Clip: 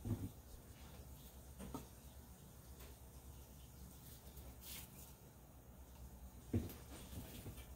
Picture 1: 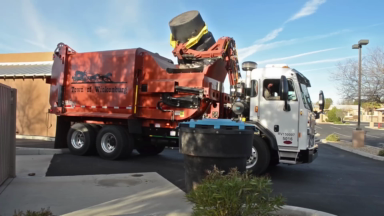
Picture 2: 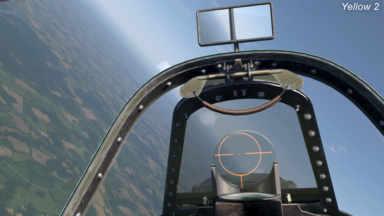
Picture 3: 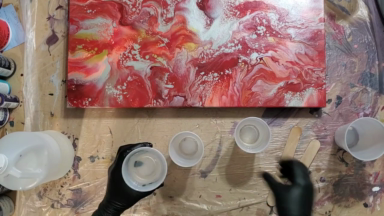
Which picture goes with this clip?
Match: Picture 3